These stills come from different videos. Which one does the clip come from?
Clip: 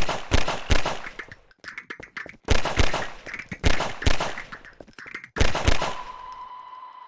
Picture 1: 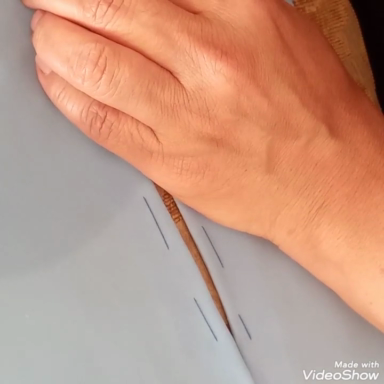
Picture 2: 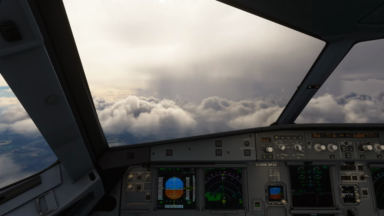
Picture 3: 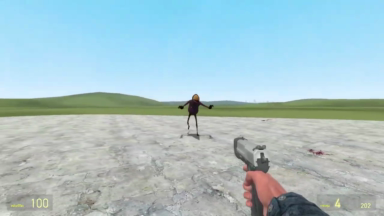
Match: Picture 3